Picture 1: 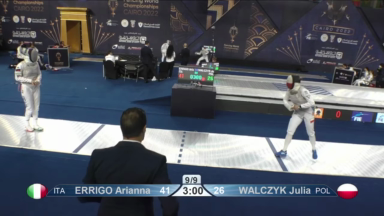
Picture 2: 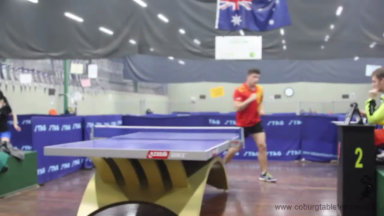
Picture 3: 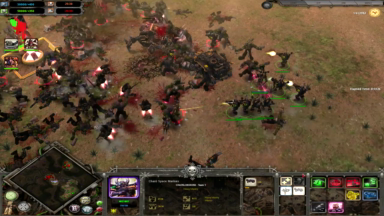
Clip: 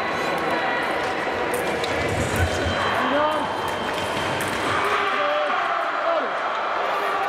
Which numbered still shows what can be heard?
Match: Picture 1